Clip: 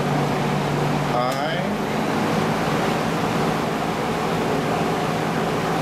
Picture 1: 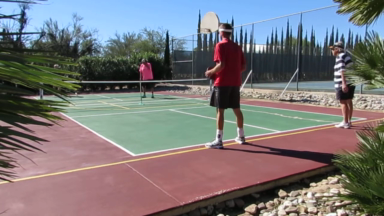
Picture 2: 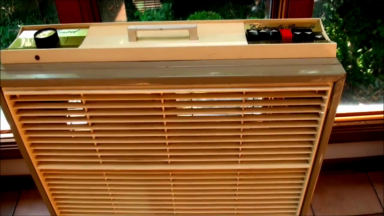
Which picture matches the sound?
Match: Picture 2